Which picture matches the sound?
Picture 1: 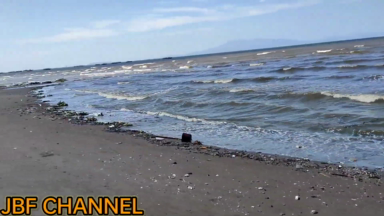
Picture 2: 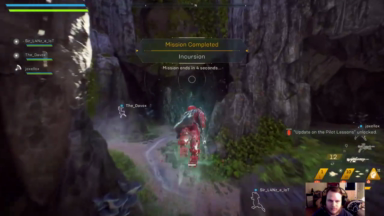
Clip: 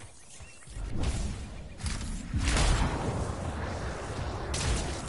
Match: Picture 2